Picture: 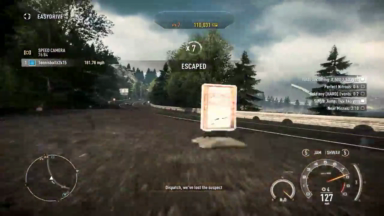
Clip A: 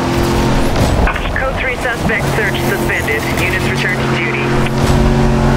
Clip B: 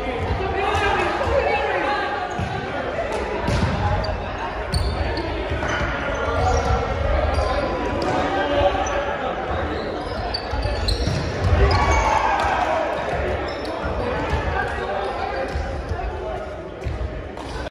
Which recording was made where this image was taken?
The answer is A